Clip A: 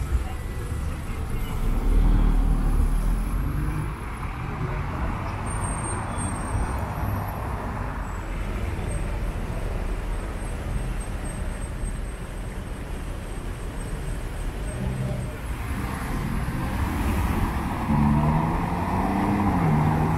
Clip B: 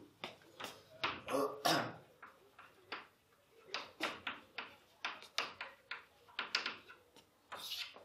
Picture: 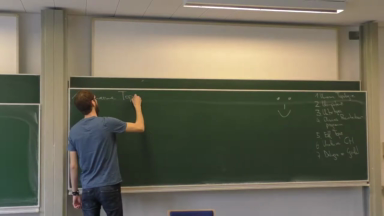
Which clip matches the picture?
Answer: B